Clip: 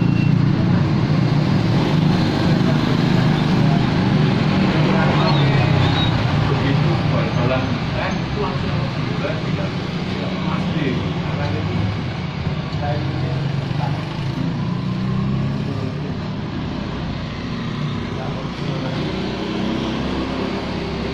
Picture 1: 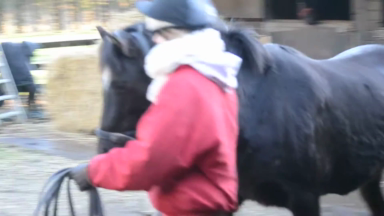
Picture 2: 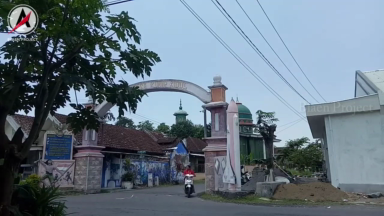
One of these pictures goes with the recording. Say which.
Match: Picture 2